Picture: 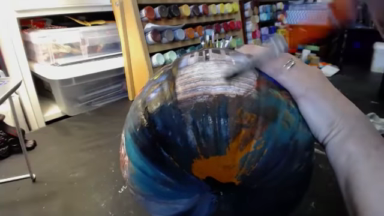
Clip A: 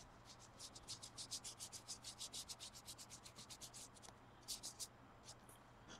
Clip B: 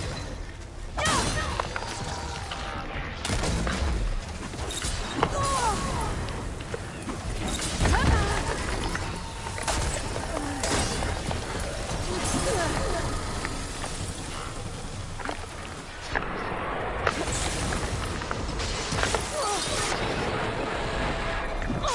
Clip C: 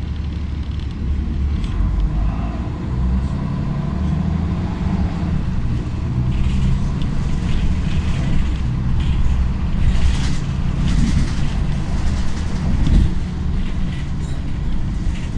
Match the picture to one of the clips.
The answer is A